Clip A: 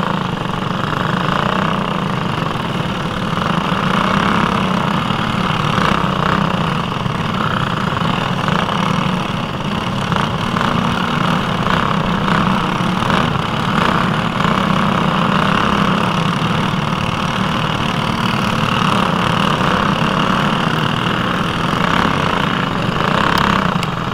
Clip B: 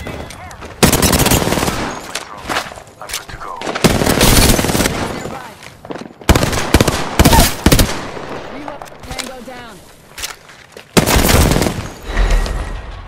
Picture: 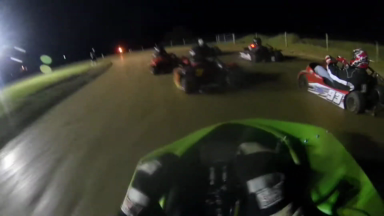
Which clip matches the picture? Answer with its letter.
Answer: A